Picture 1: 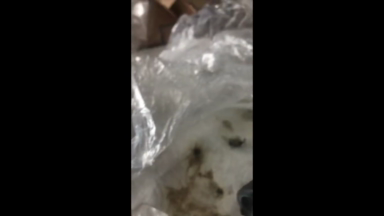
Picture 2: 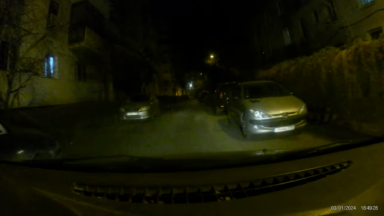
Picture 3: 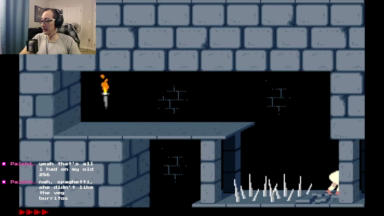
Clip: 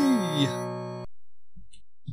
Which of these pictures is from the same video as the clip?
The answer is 3